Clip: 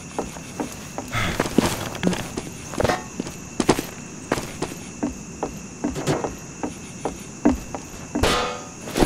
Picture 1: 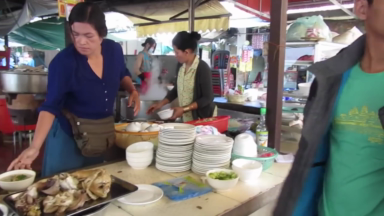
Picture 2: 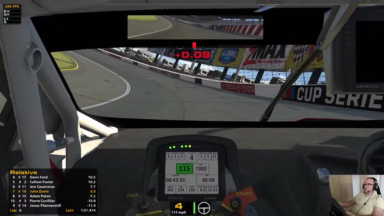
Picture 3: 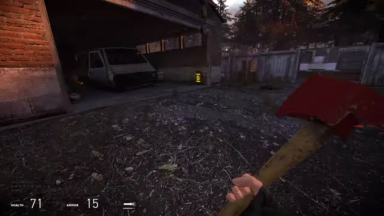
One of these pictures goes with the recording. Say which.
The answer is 3